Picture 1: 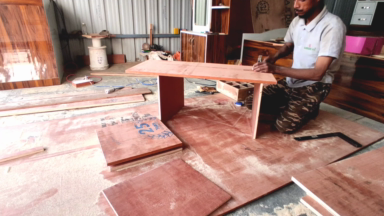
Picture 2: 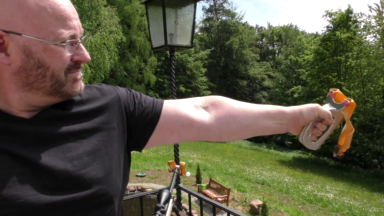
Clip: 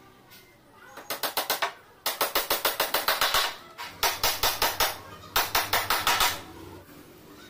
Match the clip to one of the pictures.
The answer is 1